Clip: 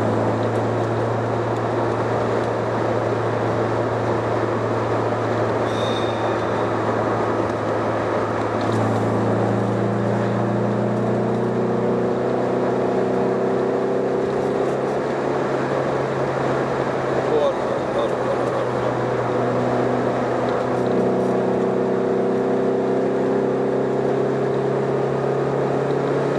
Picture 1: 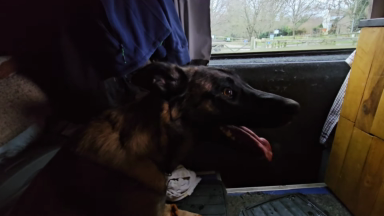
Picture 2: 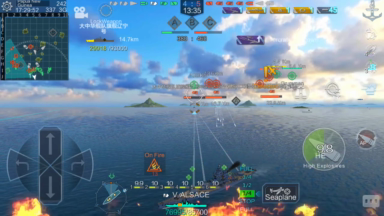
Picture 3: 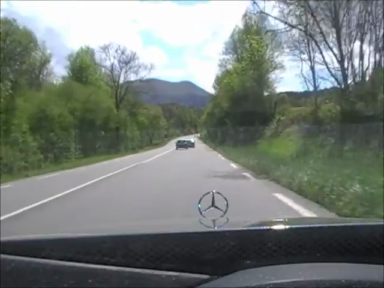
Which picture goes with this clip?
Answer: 3